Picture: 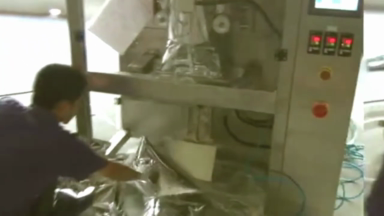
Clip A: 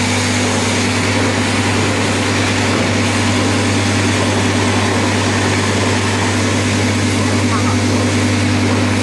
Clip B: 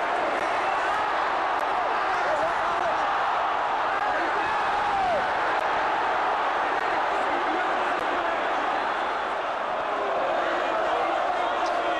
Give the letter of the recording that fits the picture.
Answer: A